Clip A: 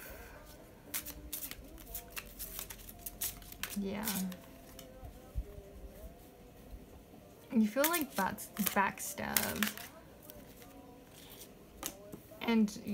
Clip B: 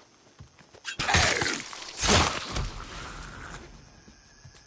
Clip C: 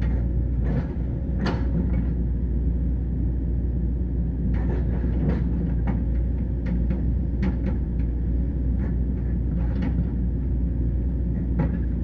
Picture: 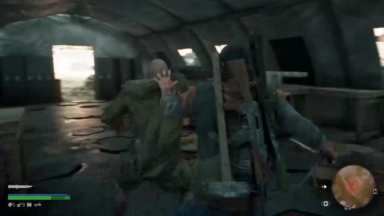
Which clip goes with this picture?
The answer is B